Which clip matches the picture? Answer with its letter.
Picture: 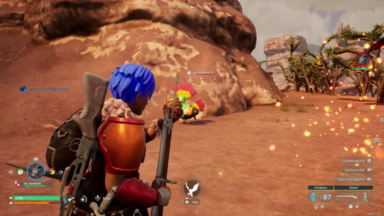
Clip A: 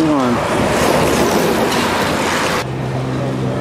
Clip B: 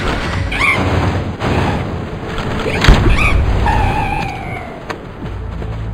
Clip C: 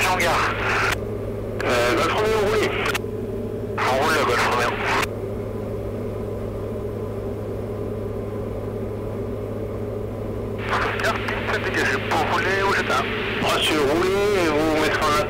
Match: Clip B